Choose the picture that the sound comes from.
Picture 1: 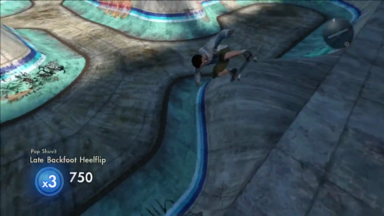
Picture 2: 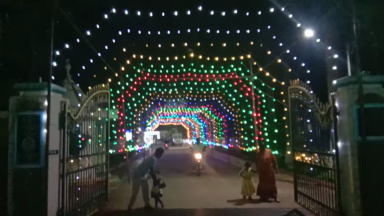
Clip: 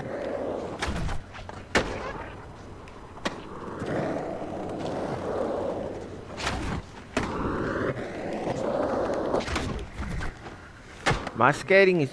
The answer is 1